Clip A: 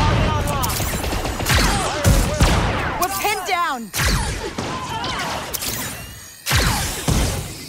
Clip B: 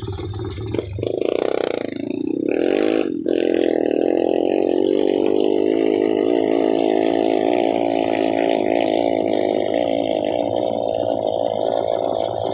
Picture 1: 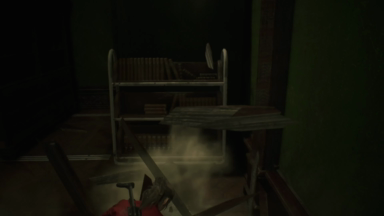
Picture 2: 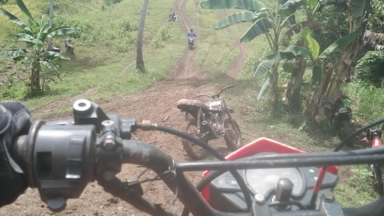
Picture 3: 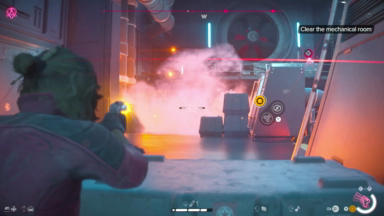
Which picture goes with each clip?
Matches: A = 3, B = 2